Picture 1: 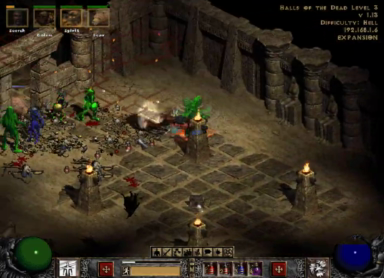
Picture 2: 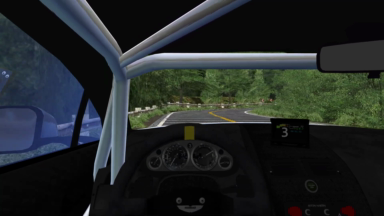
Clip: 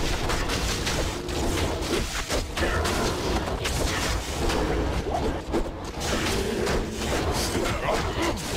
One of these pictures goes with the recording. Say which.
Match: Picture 1